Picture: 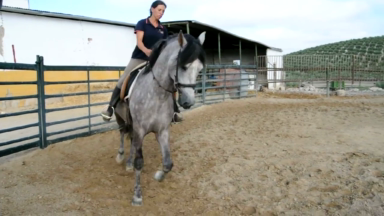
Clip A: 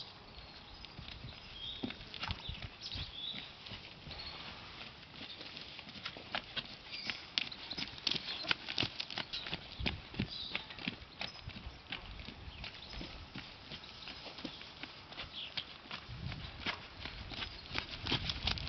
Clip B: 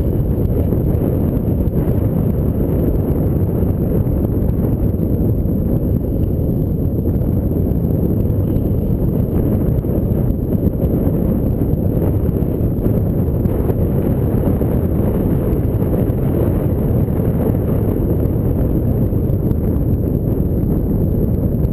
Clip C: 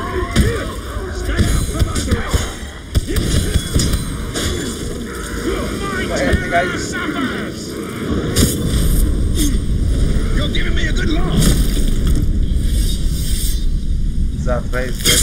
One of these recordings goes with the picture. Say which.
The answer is A